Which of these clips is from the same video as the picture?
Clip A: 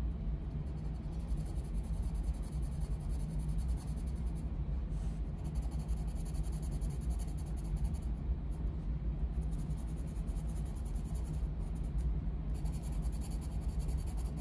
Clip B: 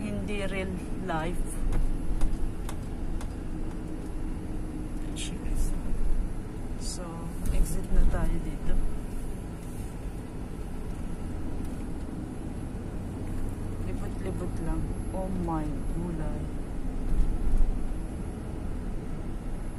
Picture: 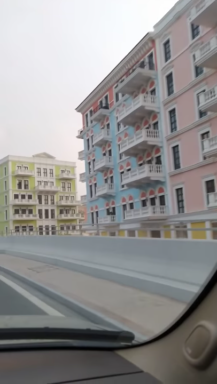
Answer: B